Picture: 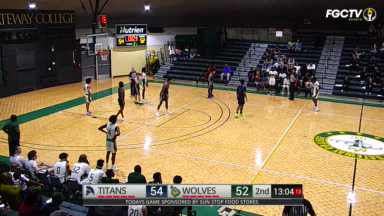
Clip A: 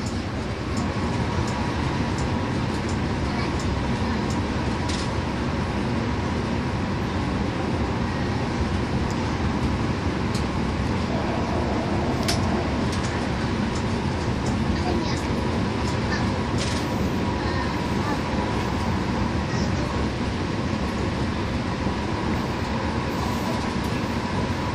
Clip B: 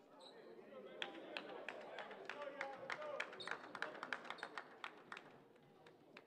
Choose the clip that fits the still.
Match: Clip B